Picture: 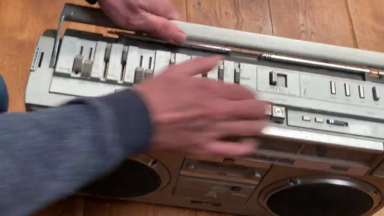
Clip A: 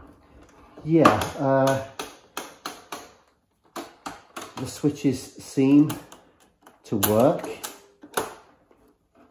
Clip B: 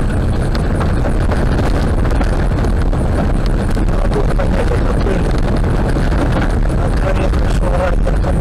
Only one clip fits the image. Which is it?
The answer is A